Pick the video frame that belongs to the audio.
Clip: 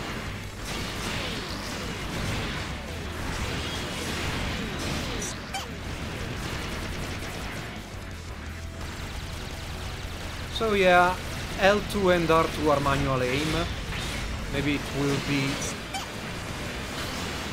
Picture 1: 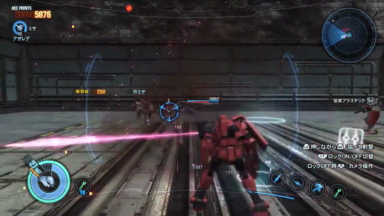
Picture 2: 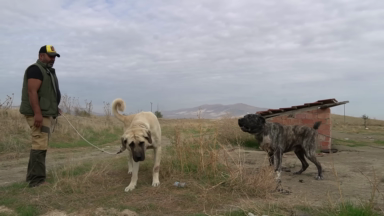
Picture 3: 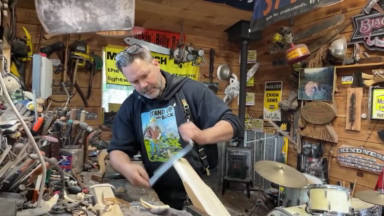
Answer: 1